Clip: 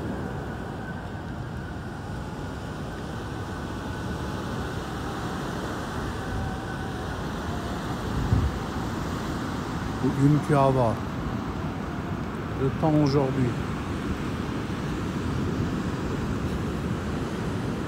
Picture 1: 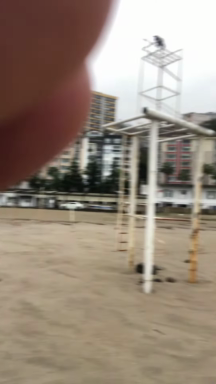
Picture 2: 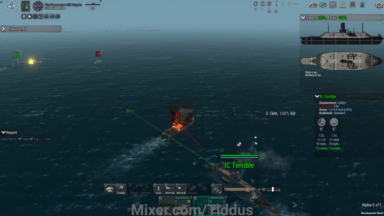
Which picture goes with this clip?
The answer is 1